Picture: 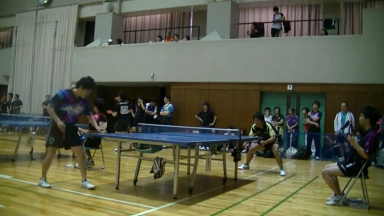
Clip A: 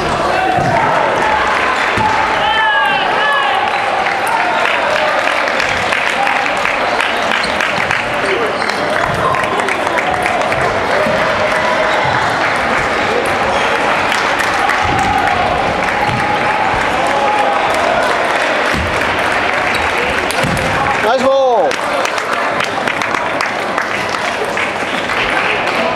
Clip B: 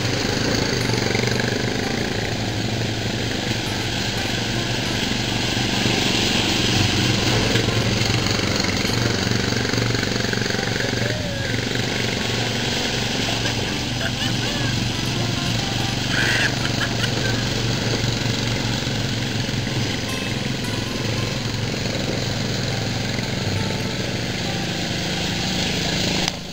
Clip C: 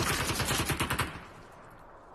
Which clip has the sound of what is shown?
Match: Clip A